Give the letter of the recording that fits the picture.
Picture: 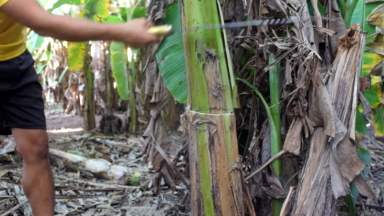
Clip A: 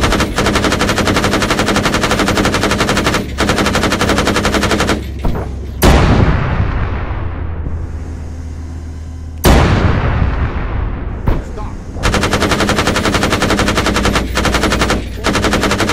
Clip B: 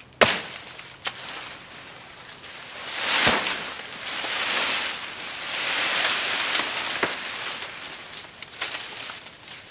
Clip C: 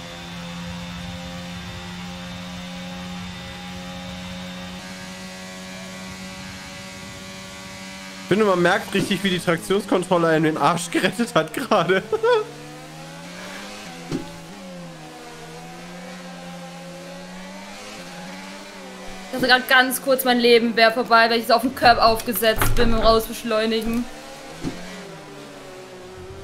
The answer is B